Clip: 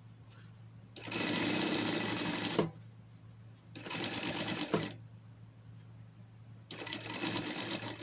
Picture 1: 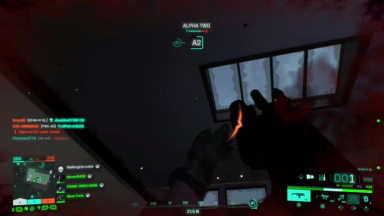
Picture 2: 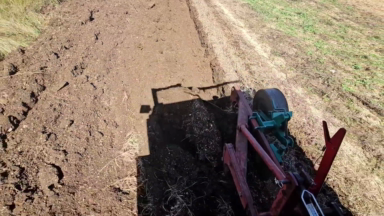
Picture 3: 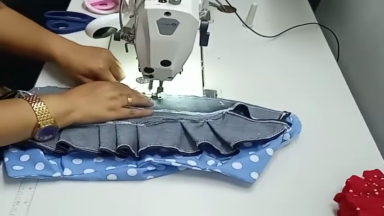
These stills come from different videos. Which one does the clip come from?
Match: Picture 3